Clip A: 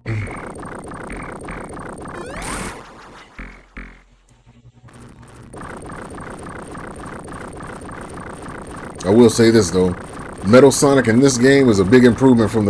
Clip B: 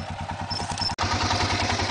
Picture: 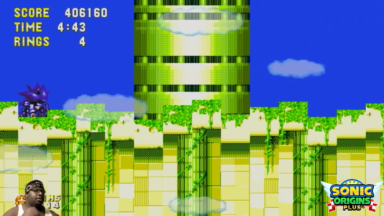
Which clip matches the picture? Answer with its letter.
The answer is A